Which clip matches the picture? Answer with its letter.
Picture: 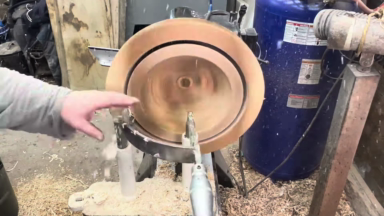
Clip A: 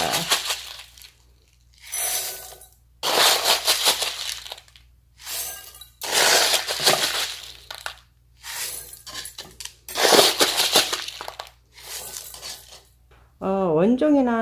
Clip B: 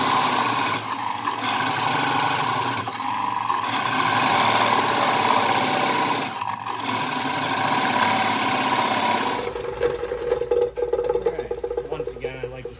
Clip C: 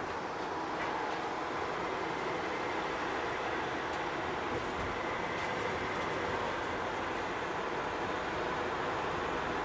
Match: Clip B